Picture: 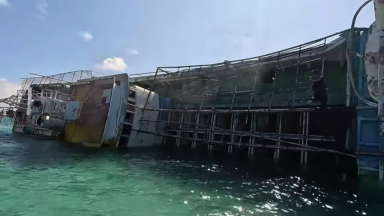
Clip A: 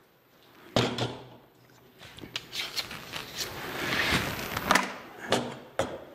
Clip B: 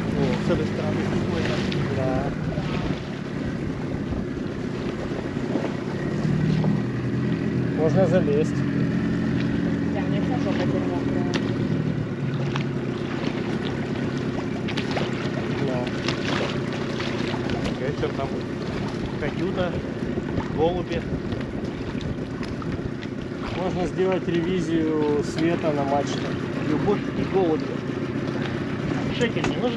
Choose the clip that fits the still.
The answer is B